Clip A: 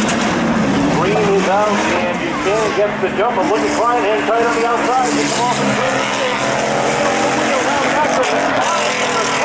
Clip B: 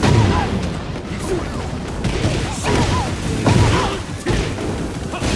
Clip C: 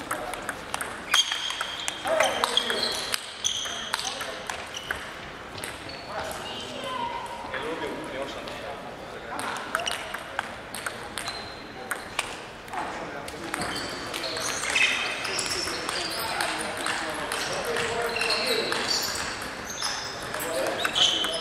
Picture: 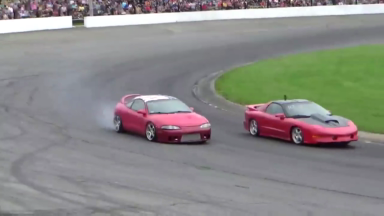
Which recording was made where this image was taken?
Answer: A